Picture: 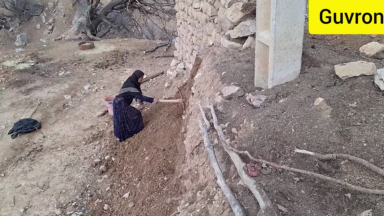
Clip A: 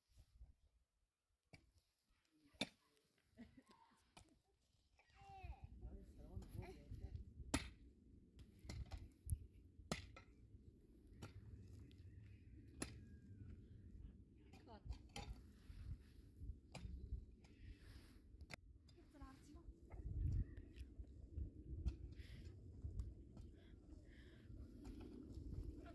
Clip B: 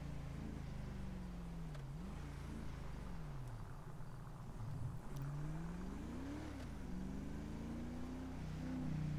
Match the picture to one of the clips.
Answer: A